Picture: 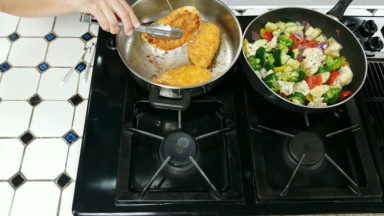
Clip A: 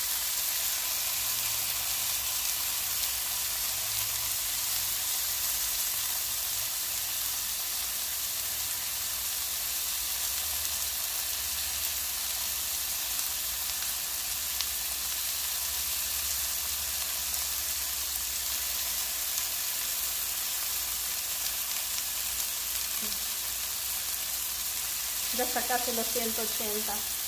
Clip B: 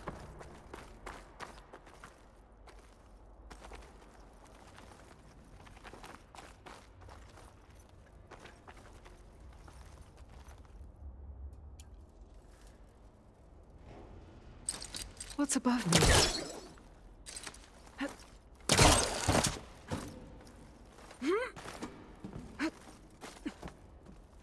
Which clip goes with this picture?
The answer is A